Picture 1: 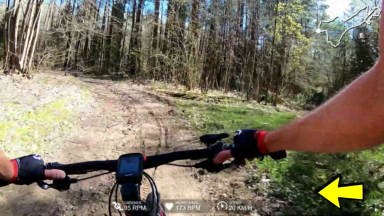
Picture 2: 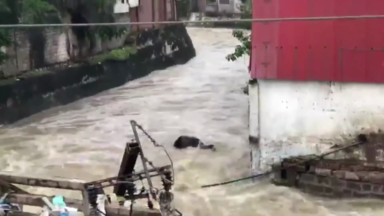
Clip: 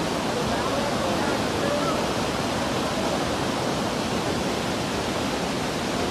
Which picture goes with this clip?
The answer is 2